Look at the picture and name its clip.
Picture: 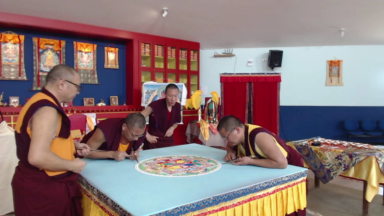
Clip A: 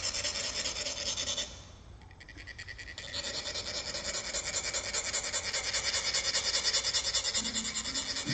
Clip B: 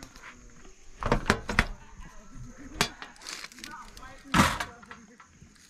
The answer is A